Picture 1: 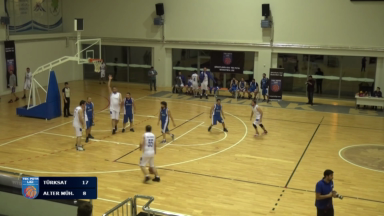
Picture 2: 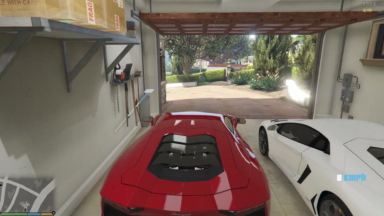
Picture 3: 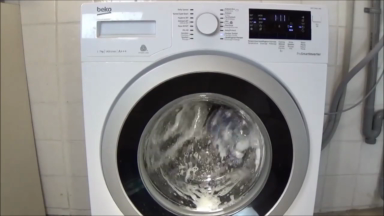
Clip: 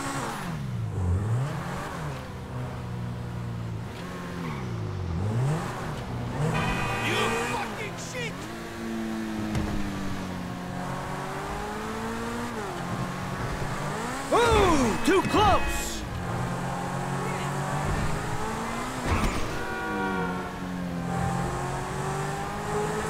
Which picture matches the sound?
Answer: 2